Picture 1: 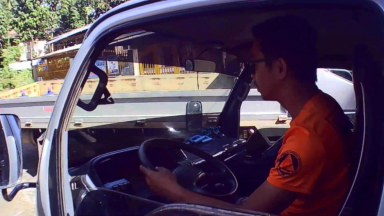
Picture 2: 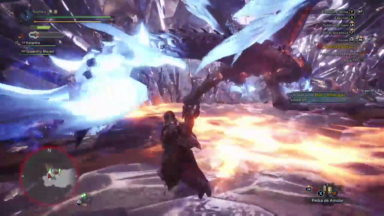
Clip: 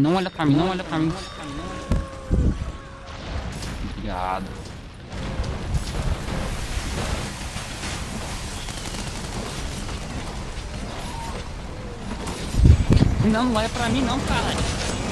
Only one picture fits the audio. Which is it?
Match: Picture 2